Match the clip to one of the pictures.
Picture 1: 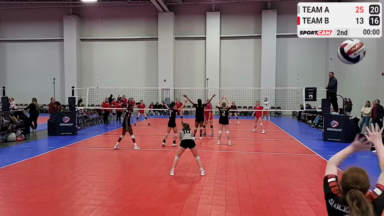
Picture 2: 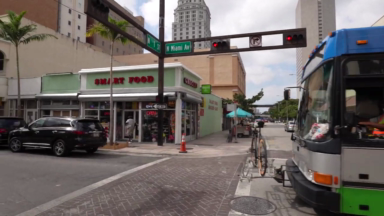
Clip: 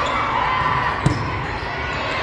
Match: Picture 1